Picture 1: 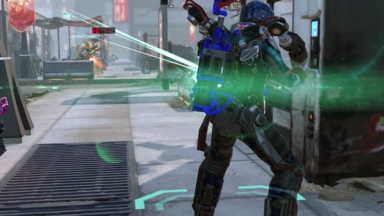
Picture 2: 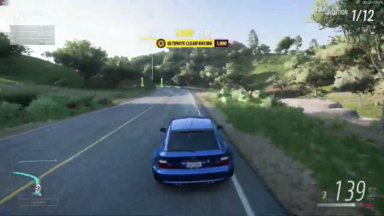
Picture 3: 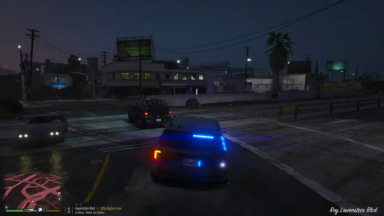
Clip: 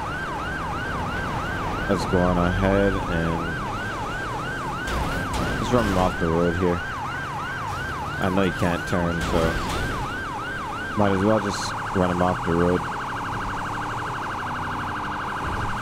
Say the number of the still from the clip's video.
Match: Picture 3